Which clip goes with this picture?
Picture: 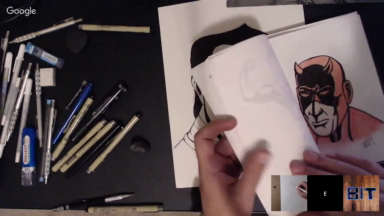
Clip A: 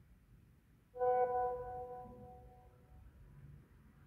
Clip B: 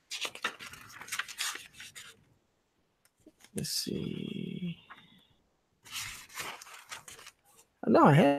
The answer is B